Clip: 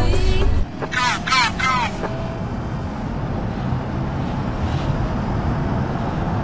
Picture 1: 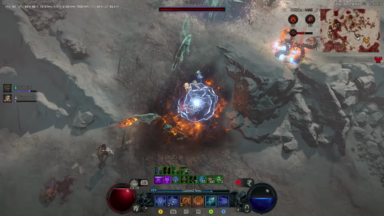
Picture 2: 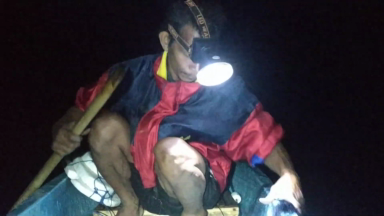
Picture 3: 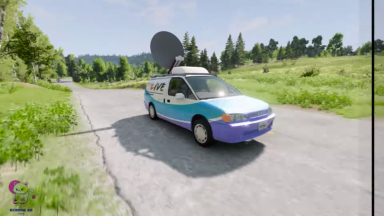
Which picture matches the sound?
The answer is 3